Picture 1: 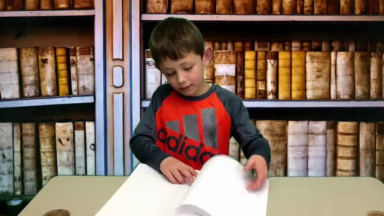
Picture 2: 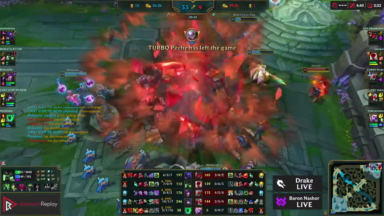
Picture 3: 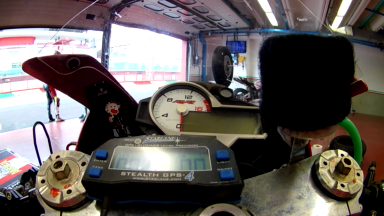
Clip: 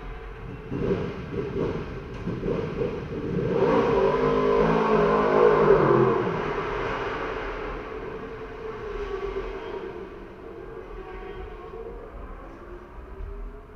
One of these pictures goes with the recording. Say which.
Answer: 3